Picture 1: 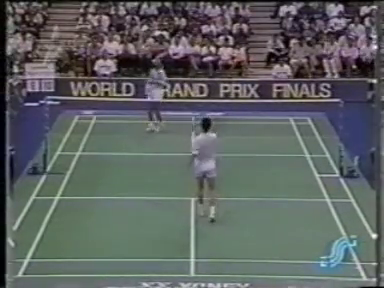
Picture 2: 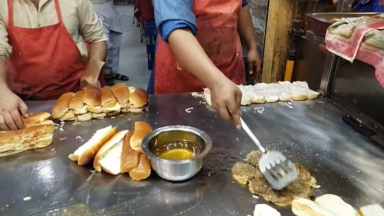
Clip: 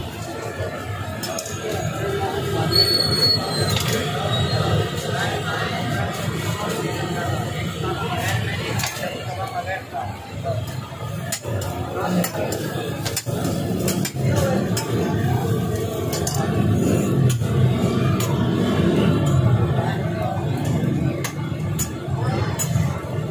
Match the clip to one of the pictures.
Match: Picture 2